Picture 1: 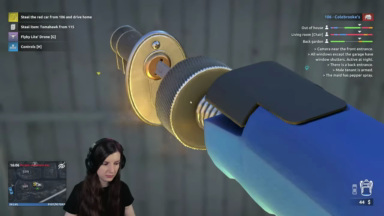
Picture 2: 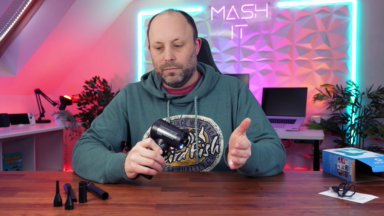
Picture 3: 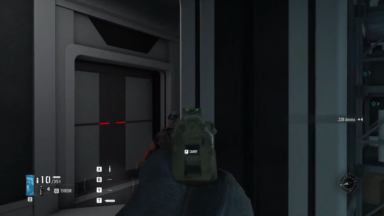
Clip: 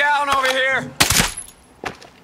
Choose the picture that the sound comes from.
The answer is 3